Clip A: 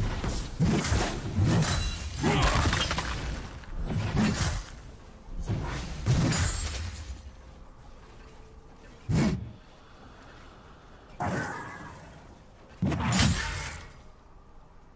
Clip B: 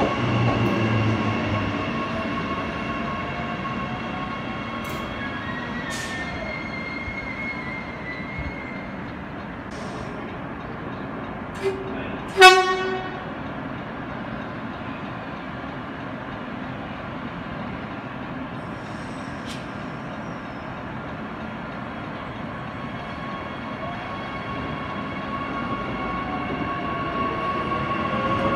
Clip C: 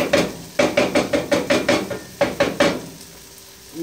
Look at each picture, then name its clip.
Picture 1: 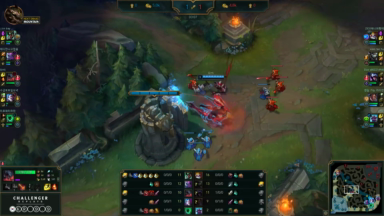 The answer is A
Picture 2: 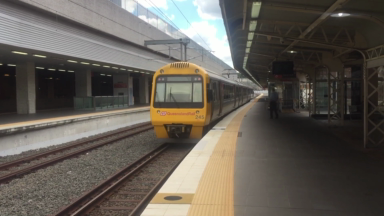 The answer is B